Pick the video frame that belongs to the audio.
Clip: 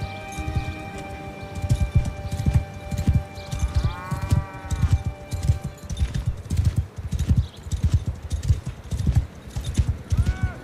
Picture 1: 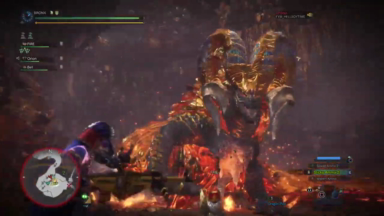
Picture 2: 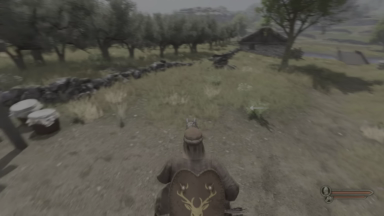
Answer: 2